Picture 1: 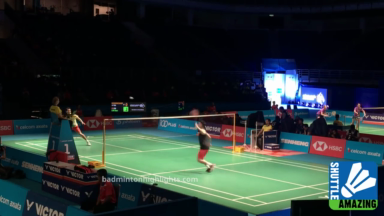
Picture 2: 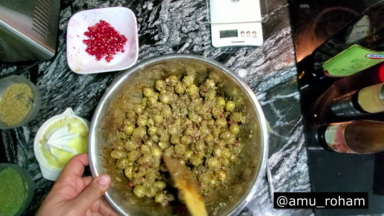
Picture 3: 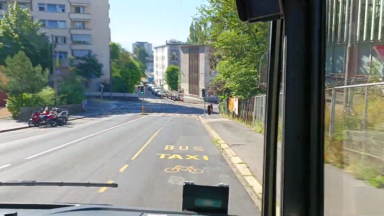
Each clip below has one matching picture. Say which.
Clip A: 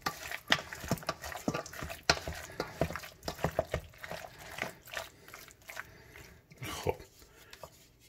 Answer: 2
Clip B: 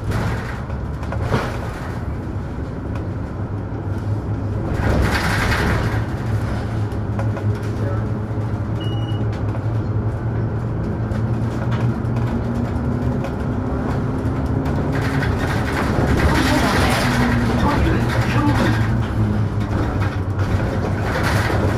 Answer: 3